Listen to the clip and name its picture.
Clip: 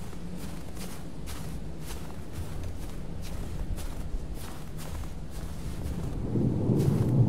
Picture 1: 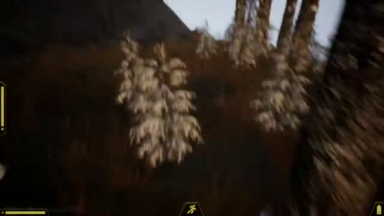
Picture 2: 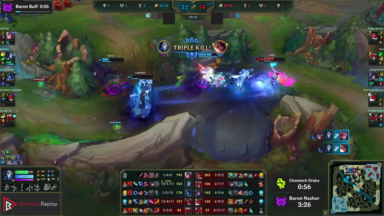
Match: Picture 1